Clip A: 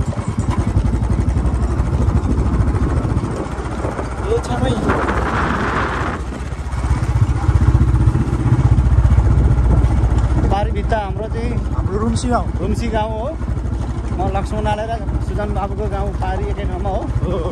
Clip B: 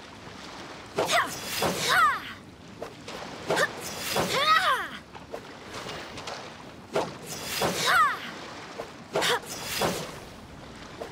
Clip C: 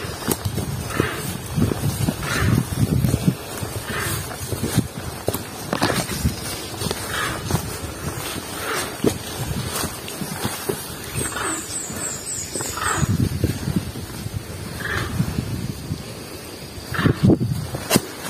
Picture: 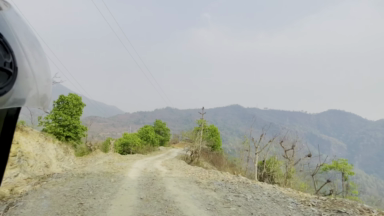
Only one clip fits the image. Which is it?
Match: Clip A